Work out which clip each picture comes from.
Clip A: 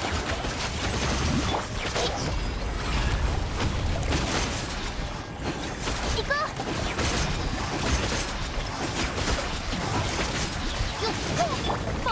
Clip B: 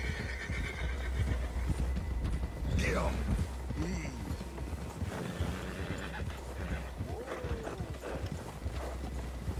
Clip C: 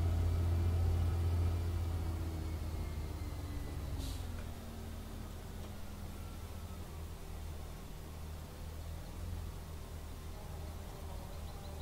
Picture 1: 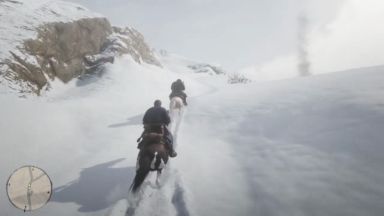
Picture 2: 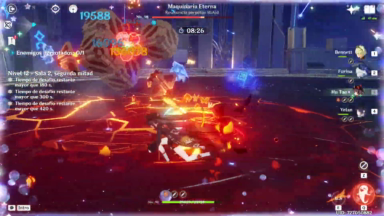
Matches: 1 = B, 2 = A